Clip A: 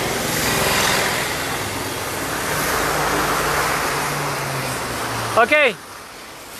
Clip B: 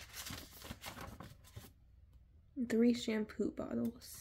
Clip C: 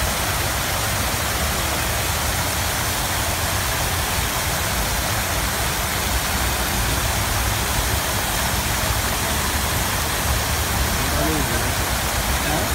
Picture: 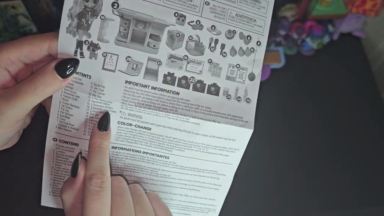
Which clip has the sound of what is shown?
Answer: B